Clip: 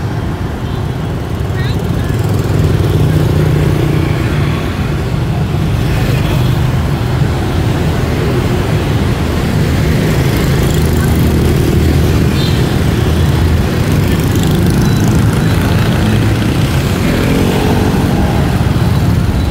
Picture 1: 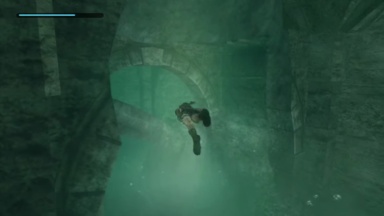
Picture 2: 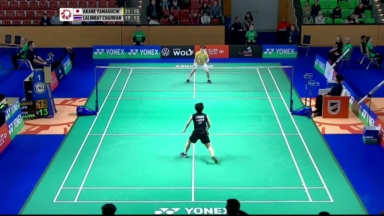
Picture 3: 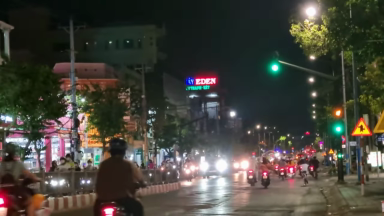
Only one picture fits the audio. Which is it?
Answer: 3